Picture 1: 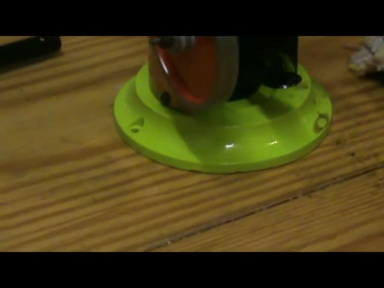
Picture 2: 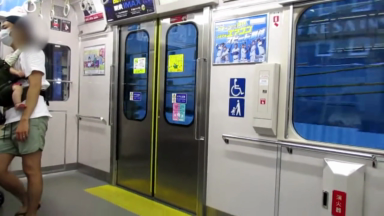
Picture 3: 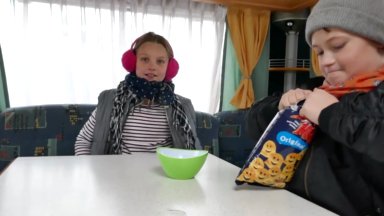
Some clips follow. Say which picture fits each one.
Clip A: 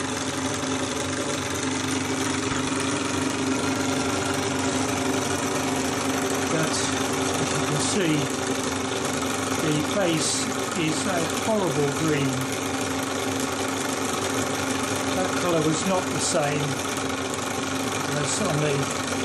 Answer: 1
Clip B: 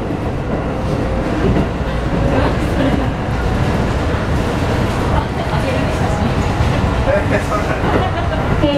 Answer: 2